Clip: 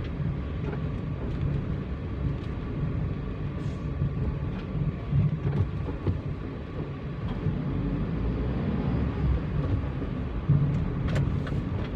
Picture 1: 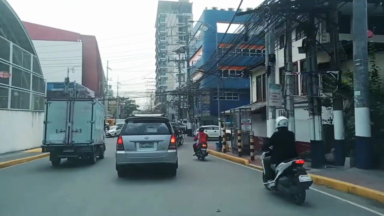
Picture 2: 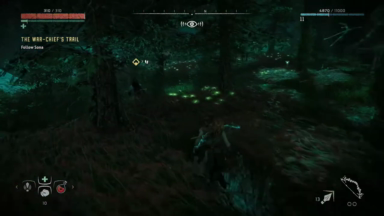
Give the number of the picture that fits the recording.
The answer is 1